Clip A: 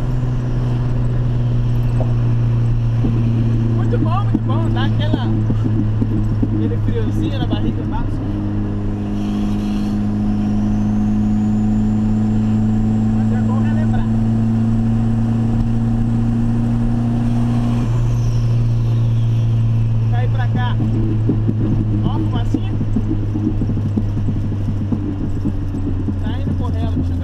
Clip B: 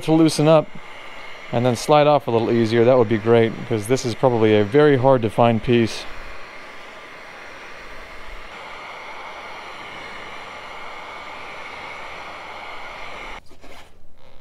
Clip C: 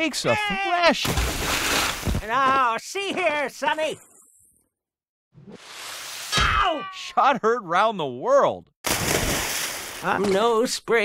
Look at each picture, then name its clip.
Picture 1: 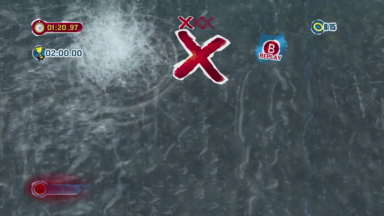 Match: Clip C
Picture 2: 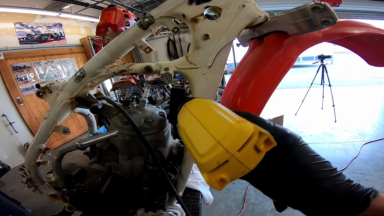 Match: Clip B